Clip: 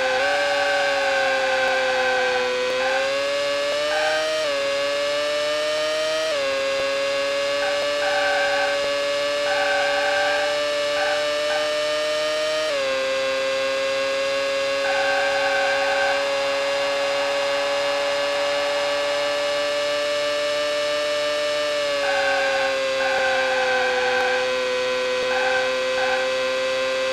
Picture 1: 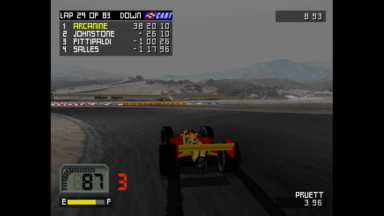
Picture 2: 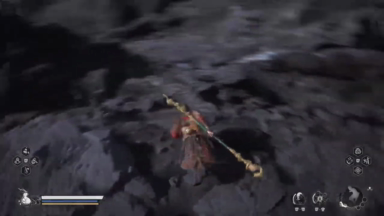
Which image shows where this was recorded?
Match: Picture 1